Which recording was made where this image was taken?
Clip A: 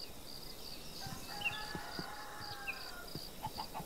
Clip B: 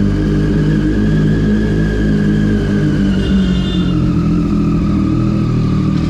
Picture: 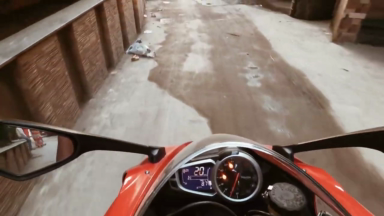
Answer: B